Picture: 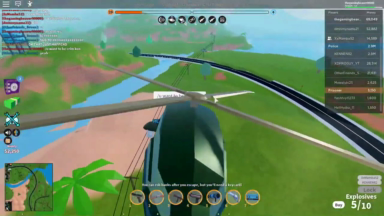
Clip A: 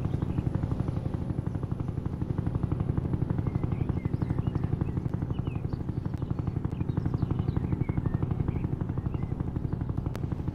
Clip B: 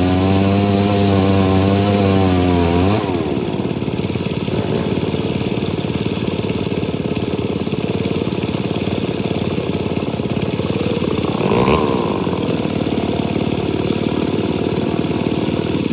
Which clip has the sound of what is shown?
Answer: A